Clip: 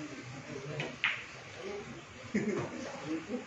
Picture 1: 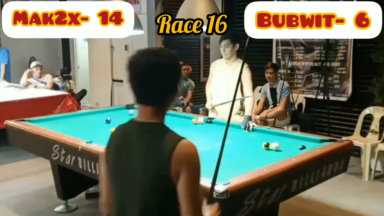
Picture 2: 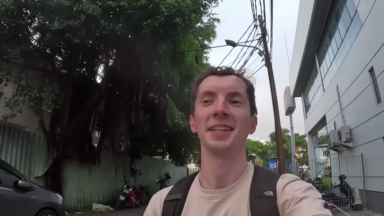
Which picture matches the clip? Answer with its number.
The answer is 1